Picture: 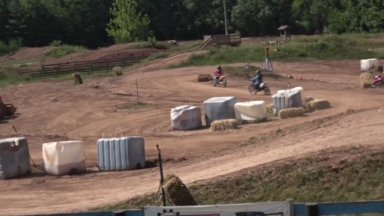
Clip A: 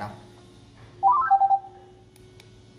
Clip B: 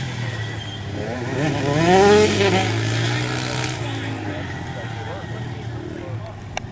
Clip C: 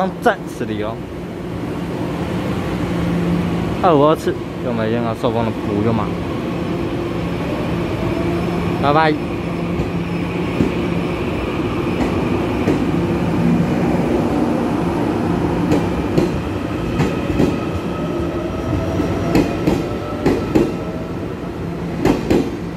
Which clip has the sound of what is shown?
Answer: B